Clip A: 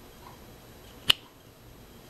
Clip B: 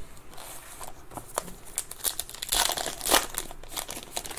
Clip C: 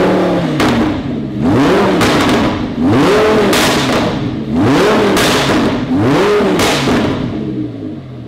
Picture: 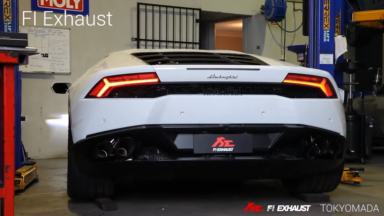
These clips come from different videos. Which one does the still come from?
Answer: C